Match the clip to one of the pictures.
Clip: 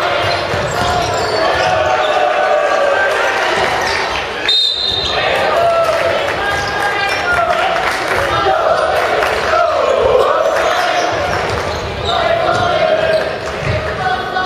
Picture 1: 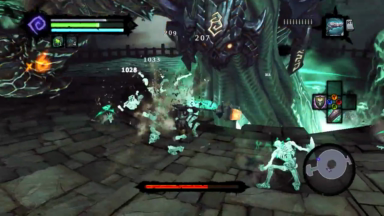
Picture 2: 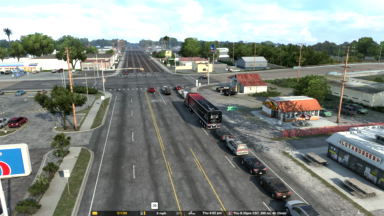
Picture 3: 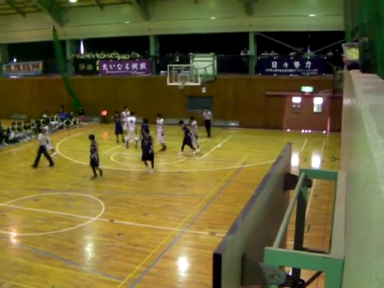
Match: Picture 3